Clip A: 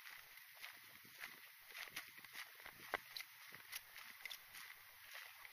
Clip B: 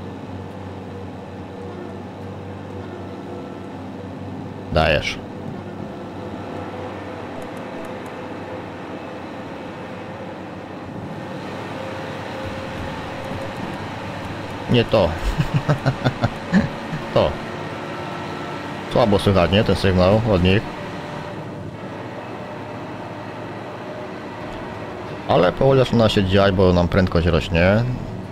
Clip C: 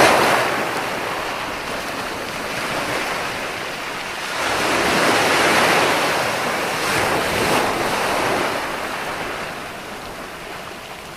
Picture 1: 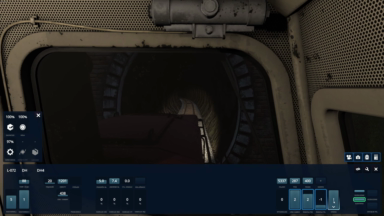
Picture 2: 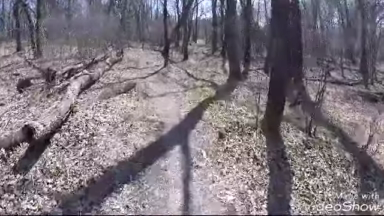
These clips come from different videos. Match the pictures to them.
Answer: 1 B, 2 A